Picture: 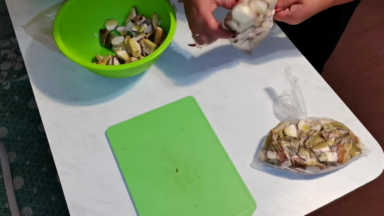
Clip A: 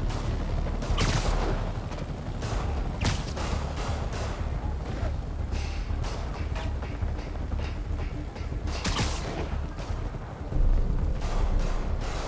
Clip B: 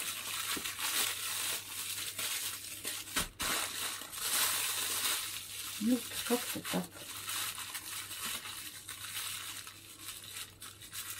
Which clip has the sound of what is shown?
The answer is B